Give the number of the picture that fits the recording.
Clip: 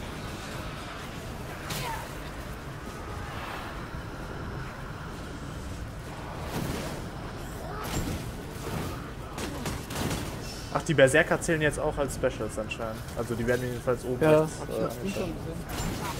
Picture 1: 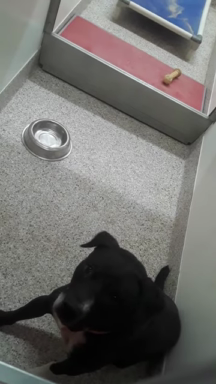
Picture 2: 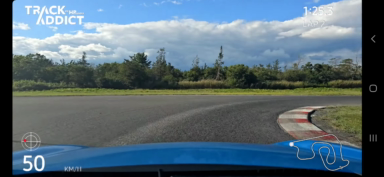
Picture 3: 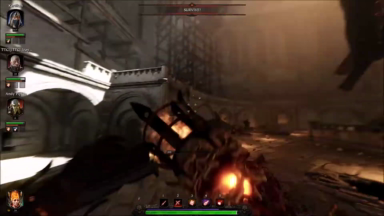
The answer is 3